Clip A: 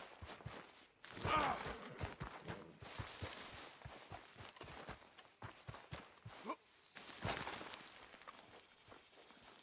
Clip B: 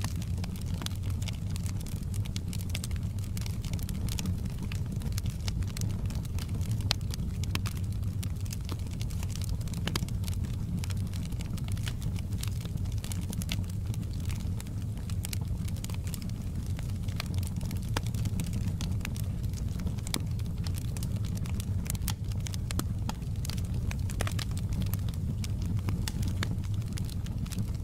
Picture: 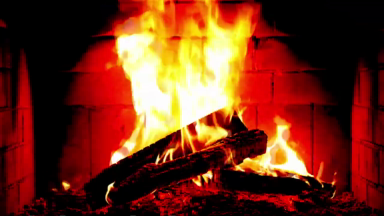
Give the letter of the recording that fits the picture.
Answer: B